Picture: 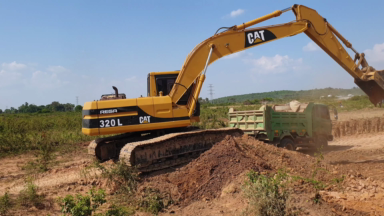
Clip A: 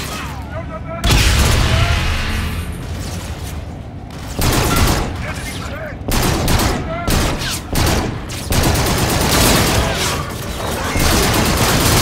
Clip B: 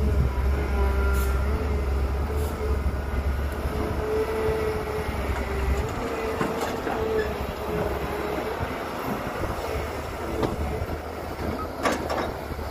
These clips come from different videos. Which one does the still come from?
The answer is B